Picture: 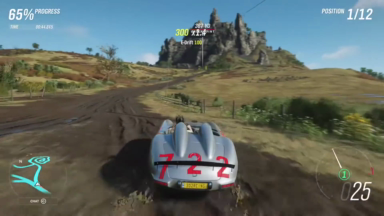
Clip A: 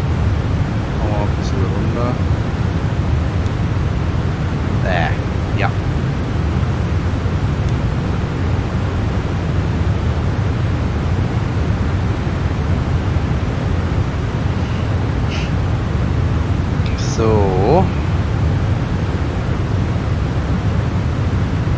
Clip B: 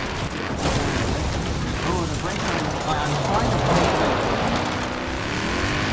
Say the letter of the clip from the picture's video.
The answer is B